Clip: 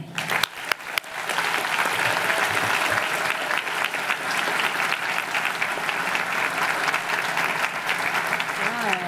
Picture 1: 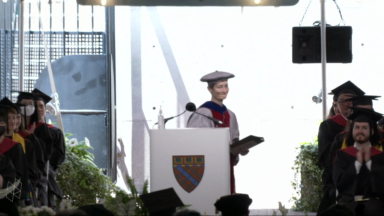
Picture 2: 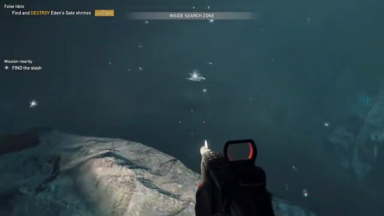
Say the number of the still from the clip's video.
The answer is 1